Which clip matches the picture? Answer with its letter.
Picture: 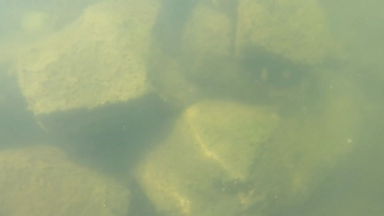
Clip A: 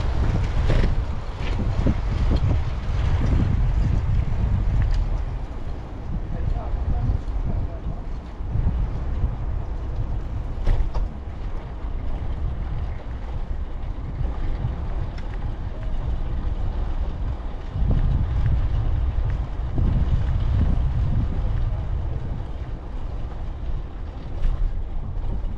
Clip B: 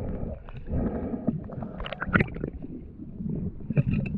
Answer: B